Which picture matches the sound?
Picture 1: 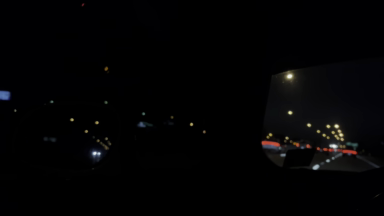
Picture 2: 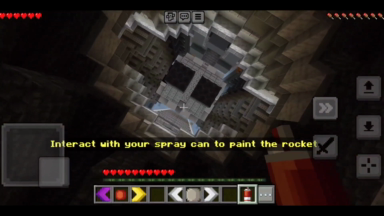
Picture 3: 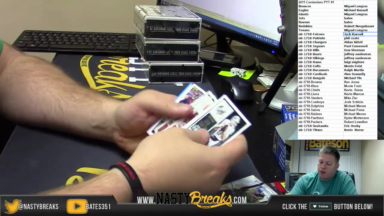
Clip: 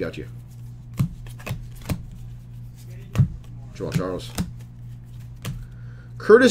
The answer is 3